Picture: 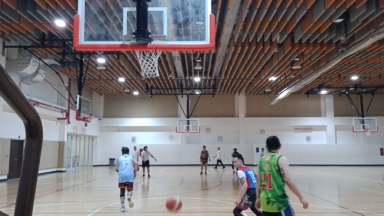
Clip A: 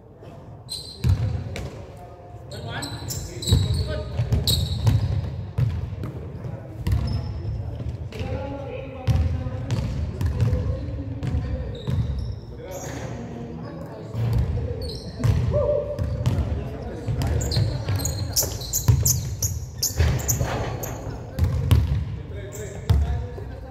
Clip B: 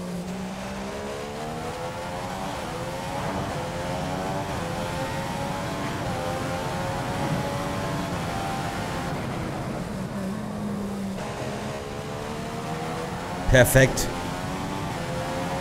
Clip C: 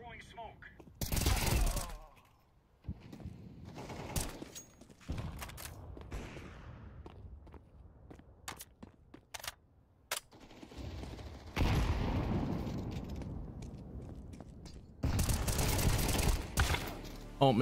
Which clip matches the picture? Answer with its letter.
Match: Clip A